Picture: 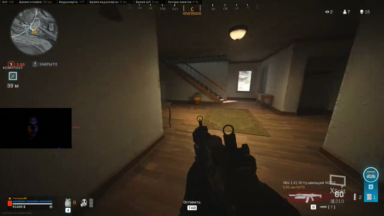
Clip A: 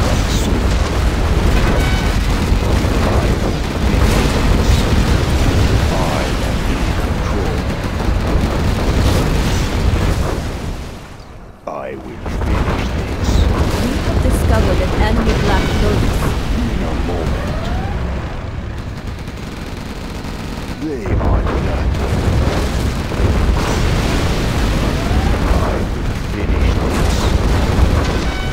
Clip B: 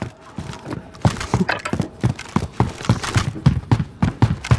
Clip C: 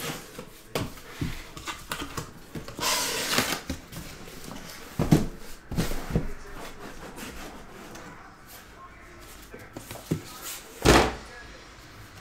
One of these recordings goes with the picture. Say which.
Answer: B